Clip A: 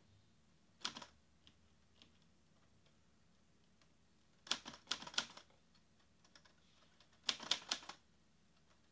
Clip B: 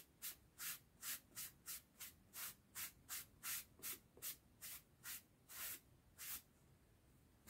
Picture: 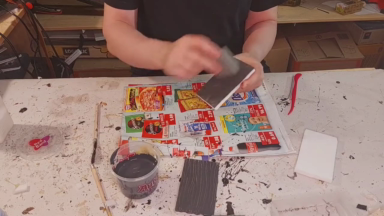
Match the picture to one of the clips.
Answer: B